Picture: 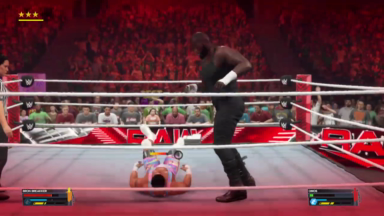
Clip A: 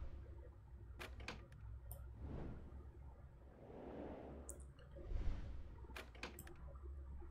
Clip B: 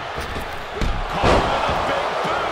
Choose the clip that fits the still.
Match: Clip B